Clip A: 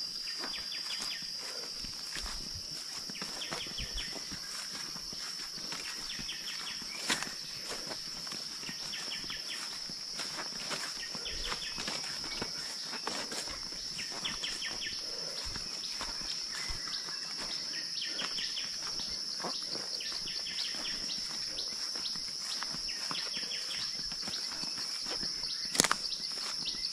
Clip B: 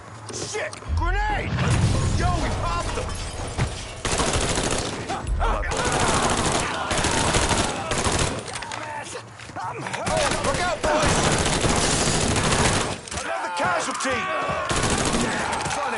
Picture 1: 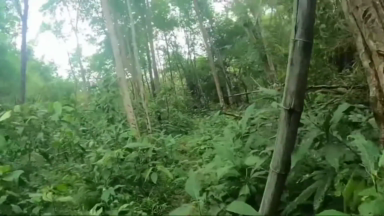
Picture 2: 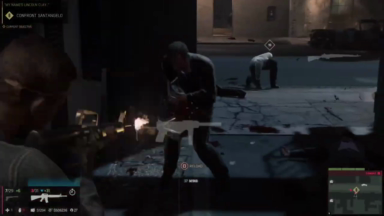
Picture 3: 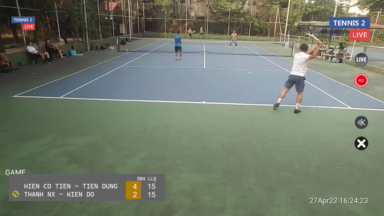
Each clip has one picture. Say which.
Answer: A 1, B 2